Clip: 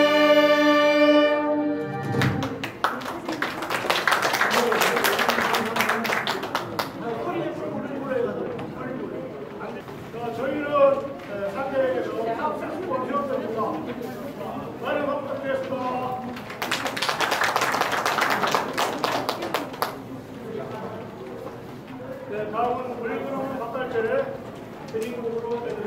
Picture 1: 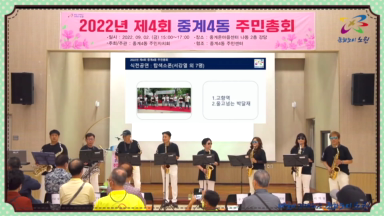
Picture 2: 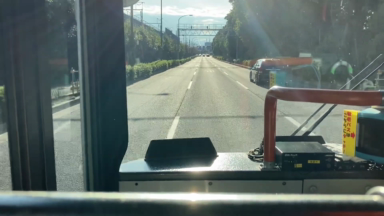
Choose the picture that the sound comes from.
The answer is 1